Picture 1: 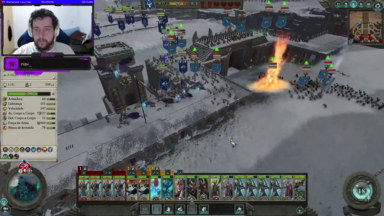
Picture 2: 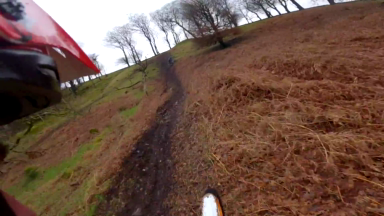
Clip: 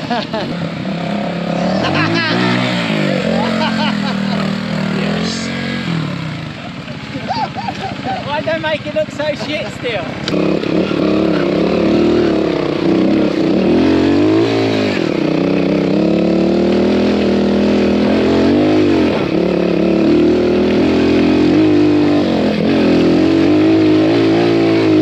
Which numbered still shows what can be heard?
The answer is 2